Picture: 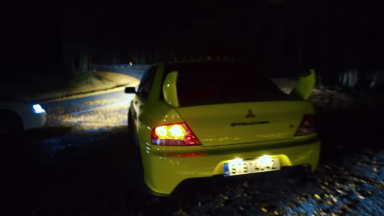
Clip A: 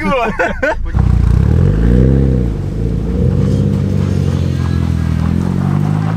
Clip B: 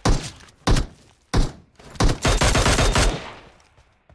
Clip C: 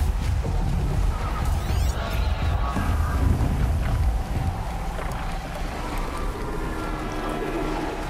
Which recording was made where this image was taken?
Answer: A